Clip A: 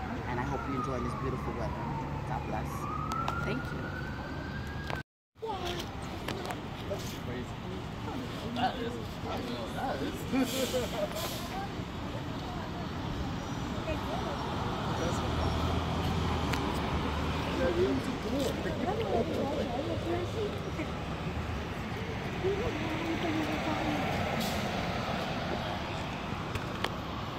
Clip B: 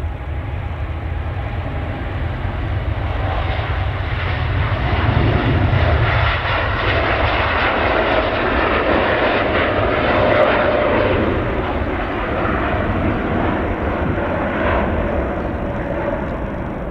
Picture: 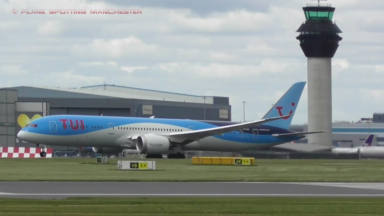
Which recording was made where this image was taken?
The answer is B